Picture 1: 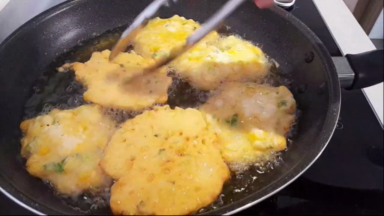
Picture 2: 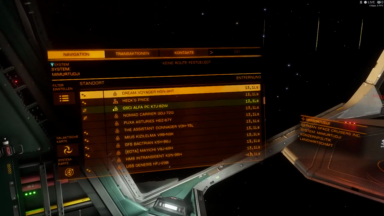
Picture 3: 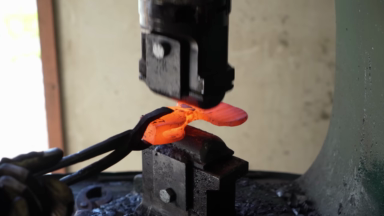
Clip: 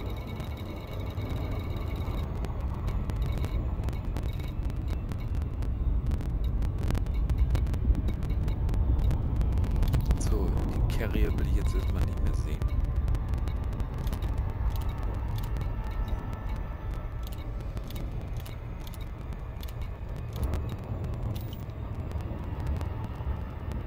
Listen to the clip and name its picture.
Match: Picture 2